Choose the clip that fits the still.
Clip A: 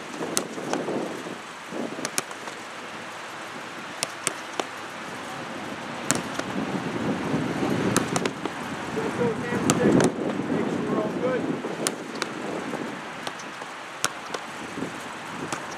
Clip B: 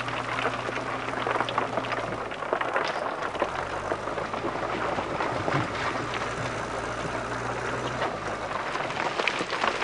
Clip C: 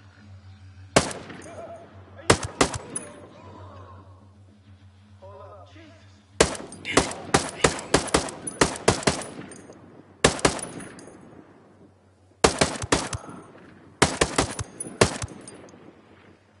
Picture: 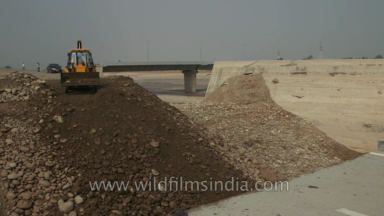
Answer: B